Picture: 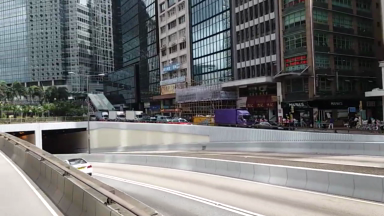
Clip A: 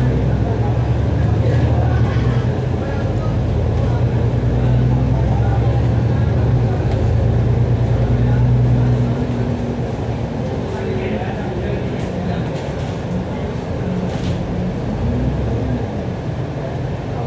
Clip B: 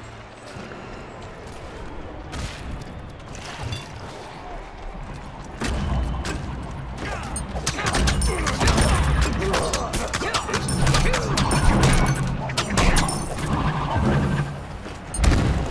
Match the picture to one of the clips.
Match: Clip A